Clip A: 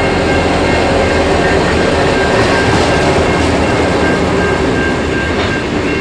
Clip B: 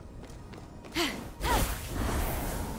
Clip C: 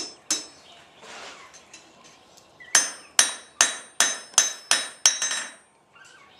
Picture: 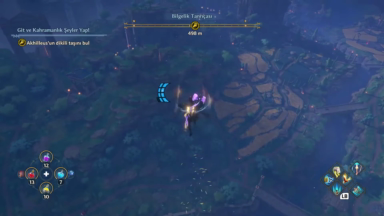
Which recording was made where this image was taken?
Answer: B